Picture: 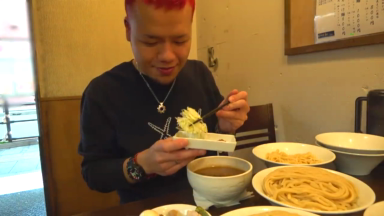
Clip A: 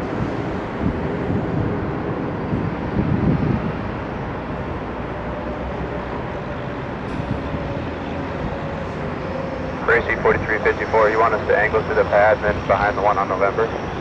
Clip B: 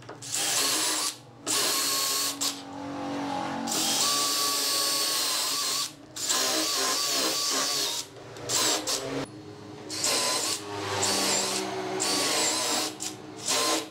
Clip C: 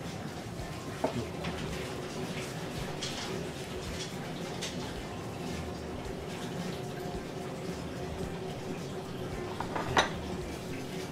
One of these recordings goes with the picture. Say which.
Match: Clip C